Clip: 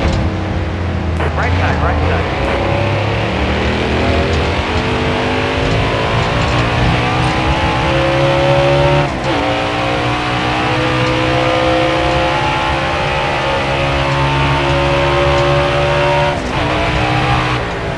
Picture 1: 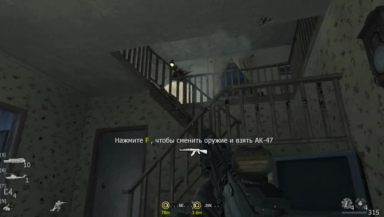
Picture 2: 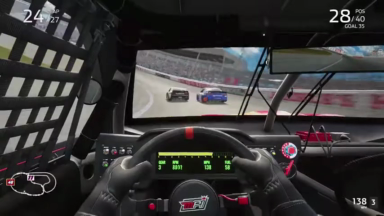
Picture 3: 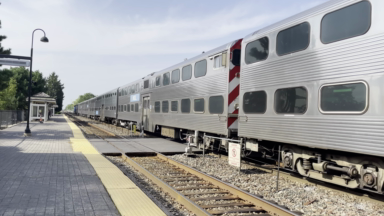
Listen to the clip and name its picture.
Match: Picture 2